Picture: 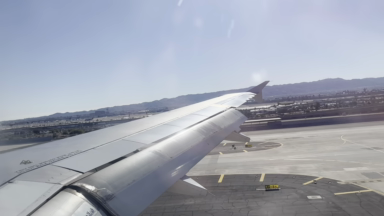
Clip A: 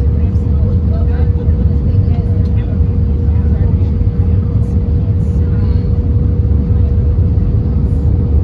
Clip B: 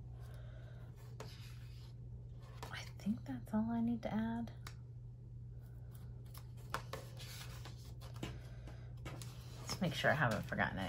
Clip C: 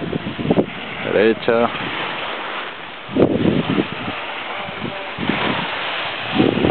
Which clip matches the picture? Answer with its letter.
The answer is A